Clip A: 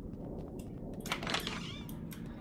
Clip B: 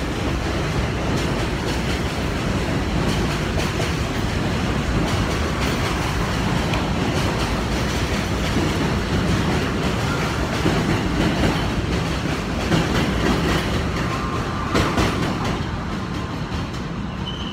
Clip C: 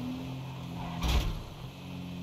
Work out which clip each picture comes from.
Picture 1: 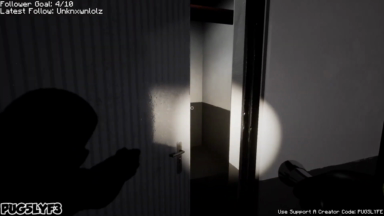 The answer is A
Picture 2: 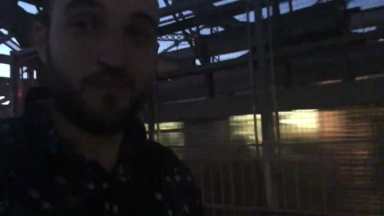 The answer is B